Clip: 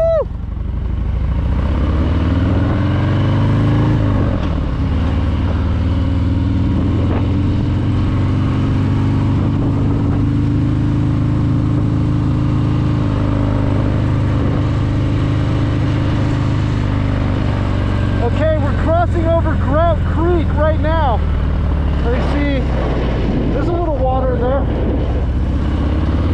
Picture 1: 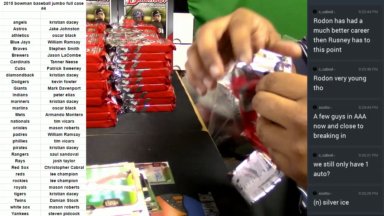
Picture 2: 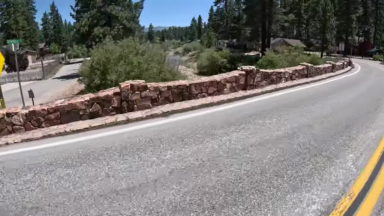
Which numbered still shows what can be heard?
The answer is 2